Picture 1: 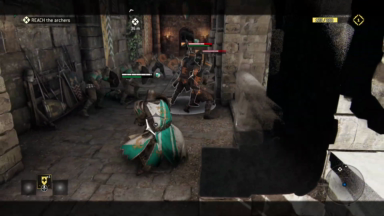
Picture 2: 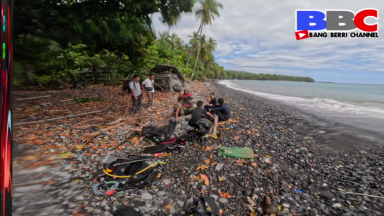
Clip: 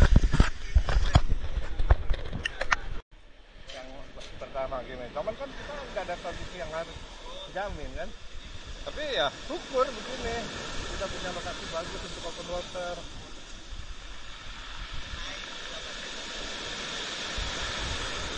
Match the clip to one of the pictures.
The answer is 2